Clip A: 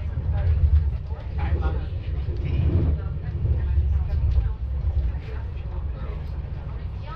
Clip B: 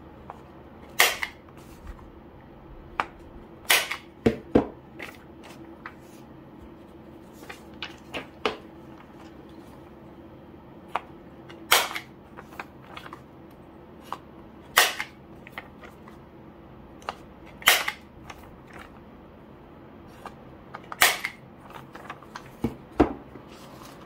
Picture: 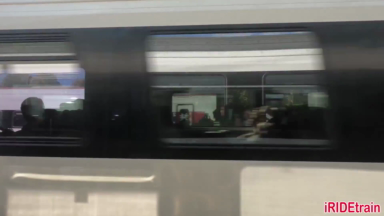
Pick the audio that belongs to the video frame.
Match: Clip A